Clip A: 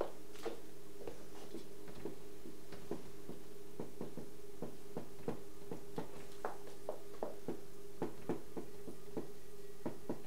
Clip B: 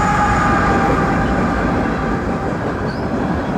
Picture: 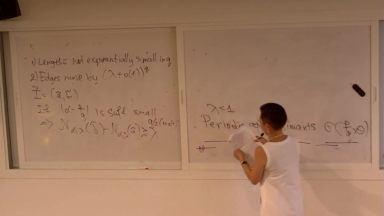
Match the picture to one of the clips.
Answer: A